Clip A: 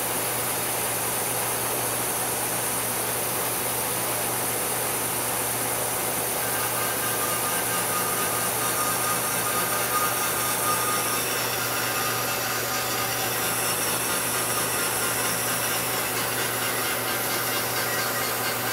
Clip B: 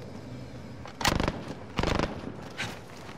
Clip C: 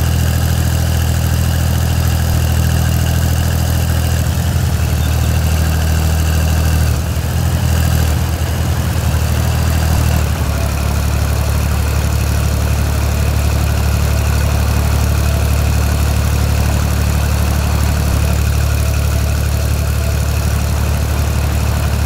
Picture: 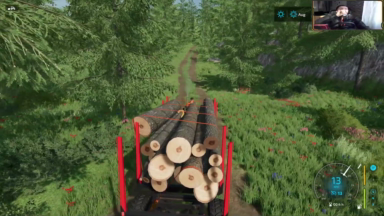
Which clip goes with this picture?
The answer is C